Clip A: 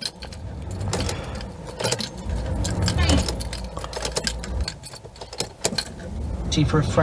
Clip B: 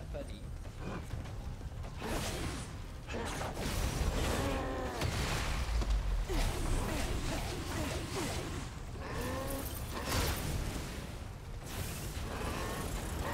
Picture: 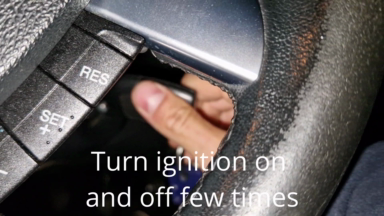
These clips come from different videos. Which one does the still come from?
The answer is A